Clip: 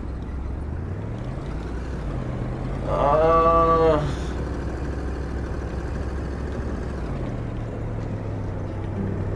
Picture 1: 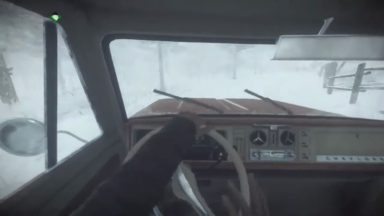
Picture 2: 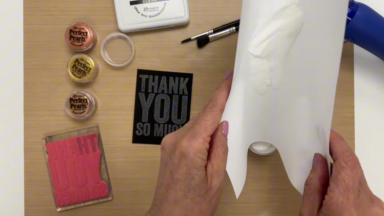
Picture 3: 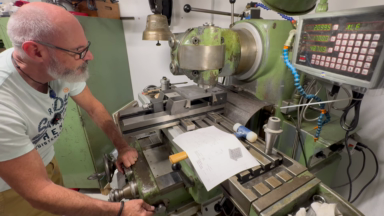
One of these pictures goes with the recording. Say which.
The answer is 1